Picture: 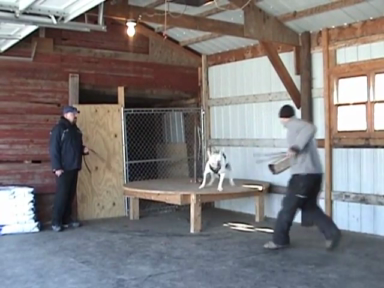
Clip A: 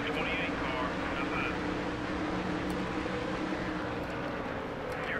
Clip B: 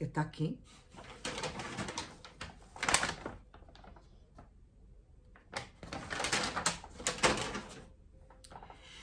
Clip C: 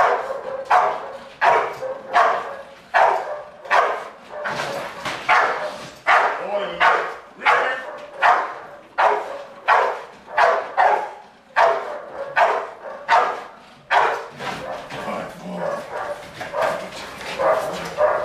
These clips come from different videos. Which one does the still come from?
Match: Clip C